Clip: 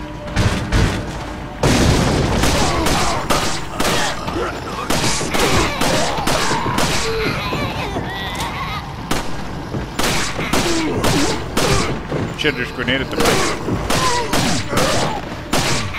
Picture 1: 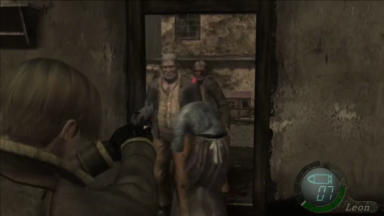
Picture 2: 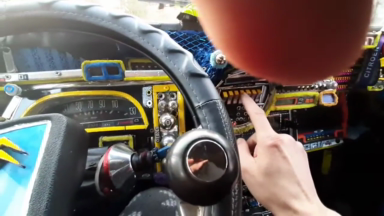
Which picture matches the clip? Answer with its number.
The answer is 1